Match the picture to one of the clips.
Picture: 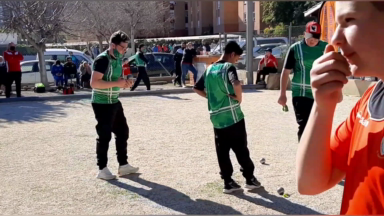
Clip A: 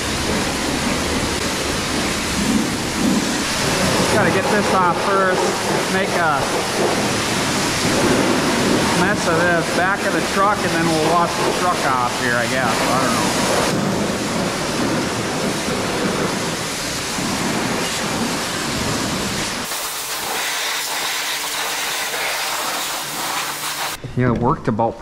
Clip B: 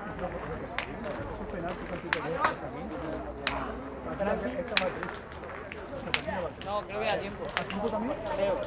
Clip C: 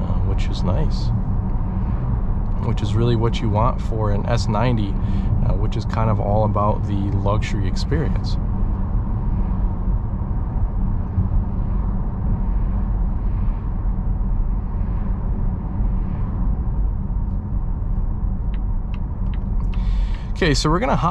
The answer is B